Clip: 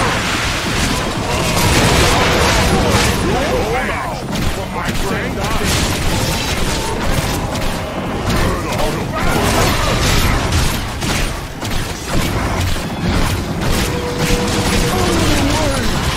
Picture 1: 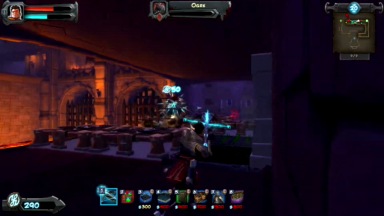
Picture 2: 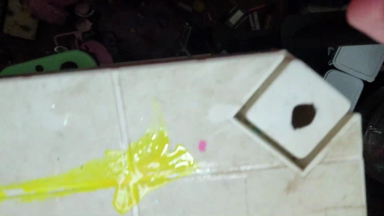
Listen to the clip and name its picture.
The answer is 1